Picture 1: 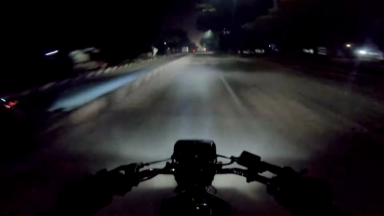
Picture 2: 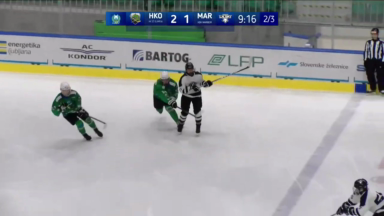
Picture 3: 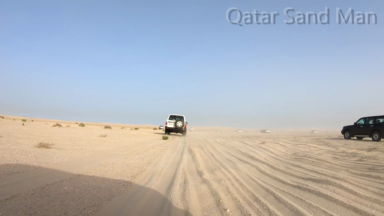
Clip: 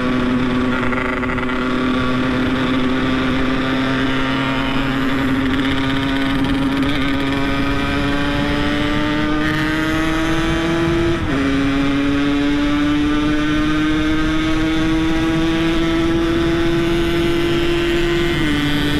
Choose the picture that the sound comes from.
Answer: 1